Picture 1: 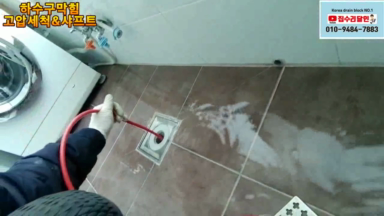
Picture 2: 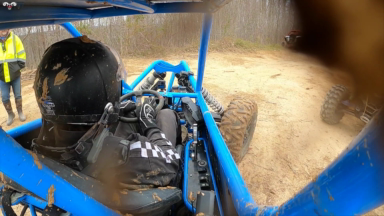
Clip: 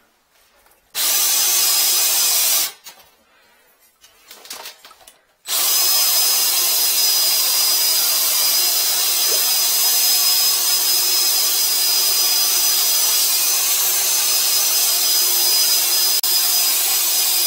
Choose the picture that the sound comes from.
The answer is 1